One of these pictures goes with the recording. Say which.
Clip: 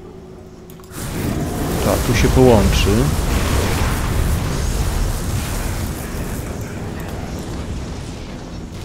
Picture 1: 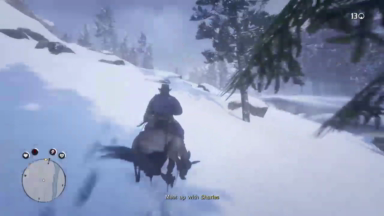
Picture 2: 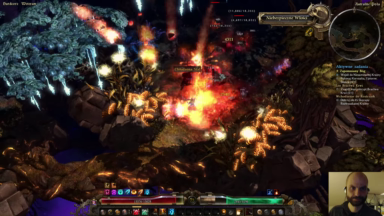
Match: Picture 2